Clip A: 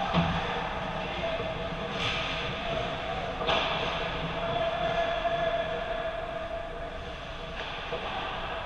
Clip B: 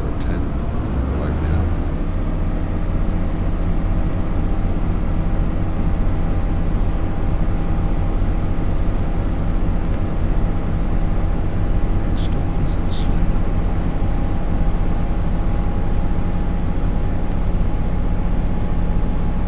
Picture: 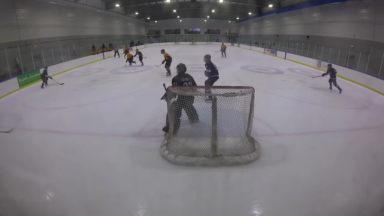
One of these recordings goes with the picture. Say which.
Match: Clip A